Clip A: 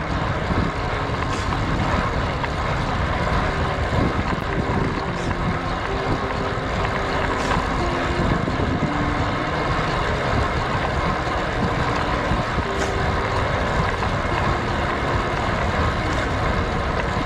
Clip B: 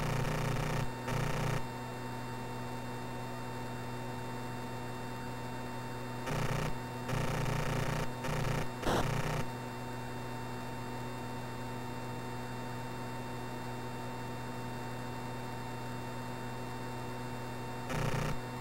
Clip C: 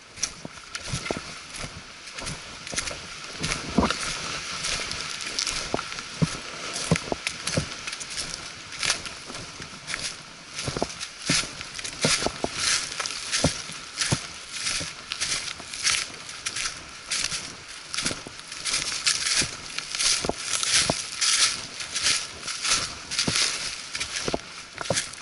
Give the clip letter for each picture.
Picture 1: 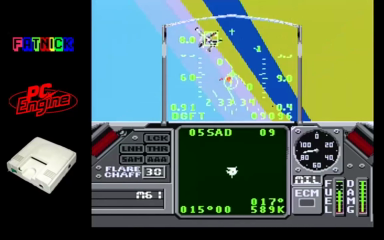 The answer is B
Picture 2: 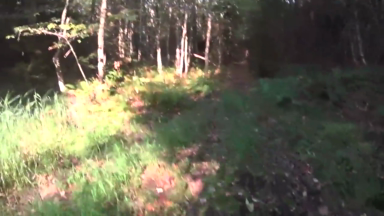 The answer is C